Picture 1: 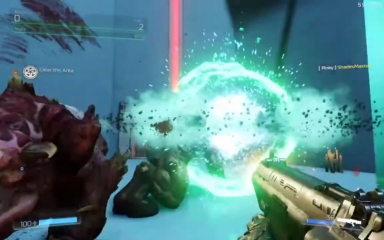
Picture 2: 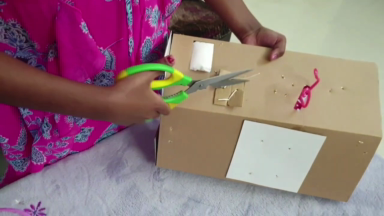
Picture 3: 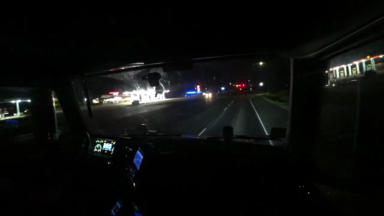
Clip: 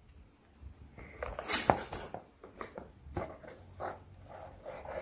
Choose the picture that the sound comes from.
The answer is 2